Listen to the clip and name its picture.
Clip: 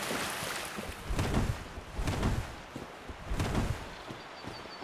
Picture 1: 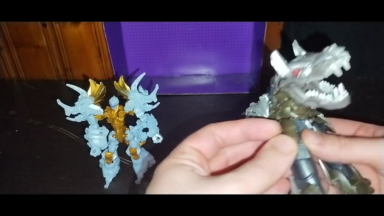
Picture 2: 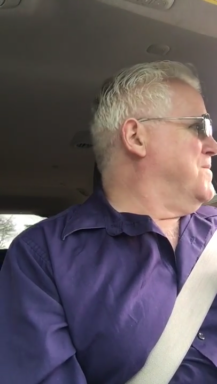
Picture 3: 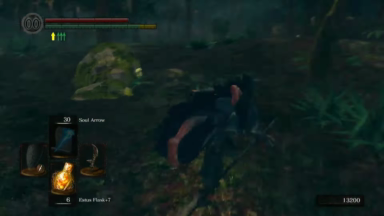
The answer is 3